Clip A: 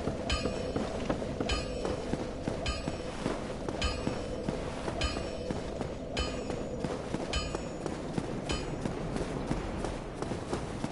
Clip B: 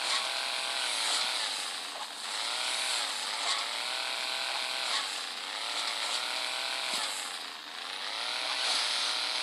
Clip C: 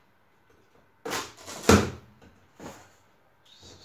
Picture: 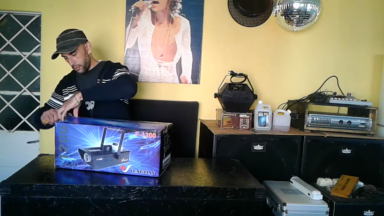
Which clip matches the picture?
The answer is C